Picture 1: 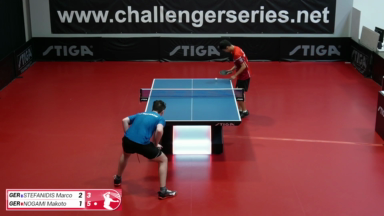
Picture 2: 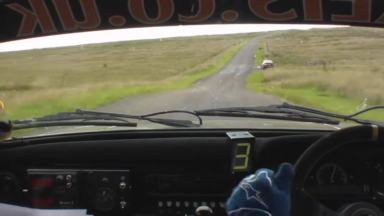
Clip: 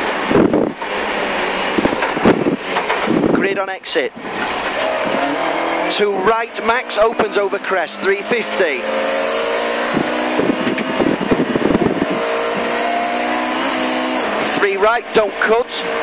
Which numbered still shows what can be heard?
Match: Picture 2